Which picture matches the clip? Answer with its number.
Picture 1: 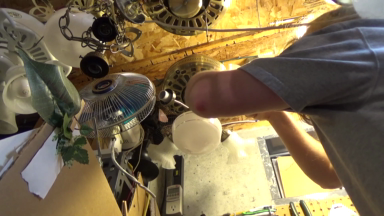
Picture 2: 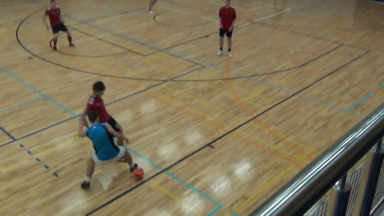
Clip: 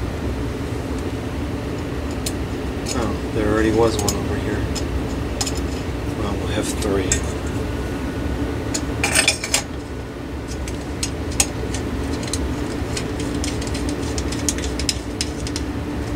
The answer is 1